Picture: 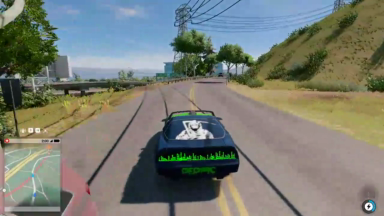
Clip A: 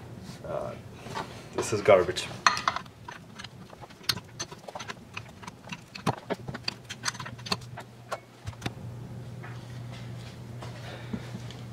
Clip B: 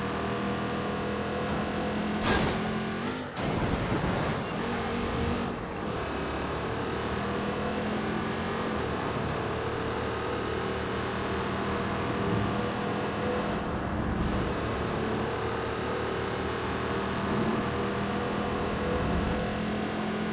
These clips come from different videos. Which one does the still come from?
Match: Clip B